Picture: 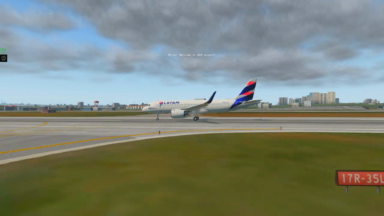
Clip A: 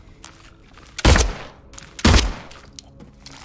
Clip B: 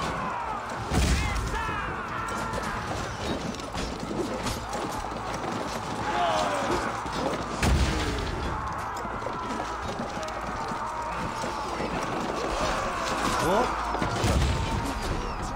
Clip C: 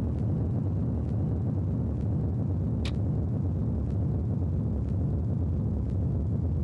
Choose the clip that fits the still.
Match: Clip C